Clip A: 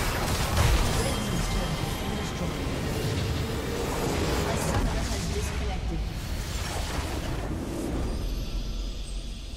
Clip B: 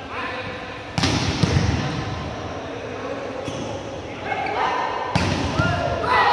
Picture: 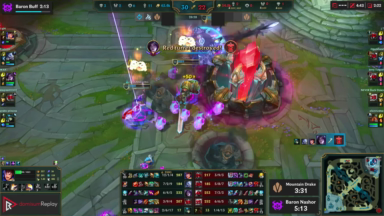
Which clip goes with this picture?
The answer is A